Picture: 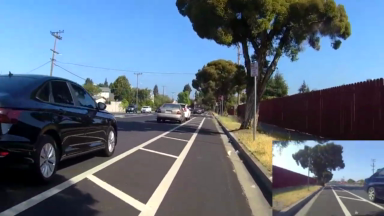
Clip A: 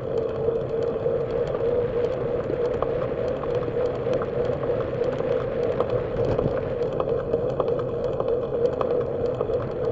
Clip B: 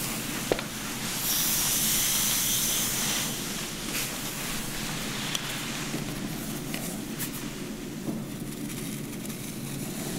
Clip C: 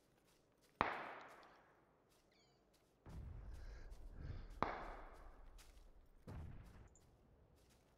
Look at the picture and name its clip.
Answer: A